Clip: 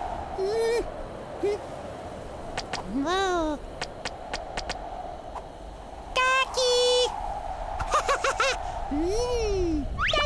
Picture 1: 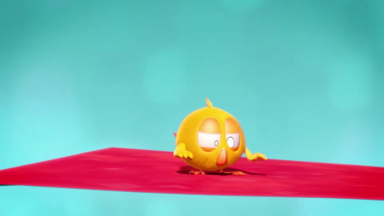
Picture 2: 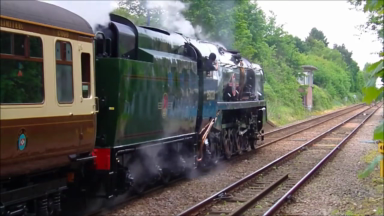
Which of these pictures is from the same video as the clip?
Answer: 1